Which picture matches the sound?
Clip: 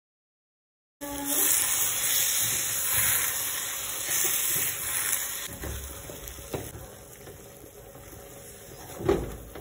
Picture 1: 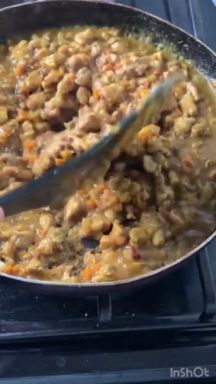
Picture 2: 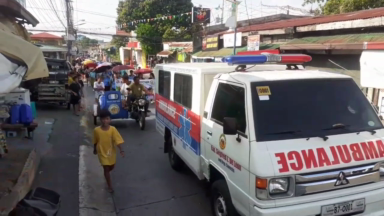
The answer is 1